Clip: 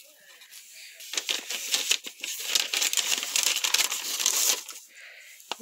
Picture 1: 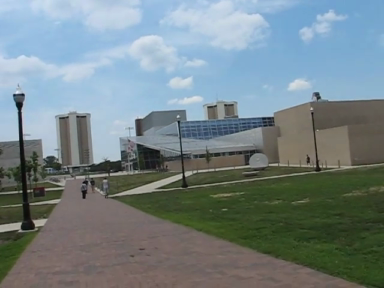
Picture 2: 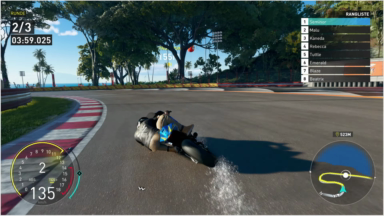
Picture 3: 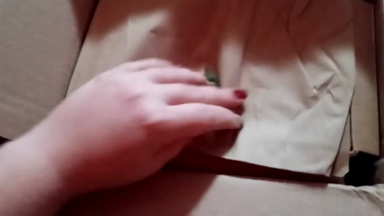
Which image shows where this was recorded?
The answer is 3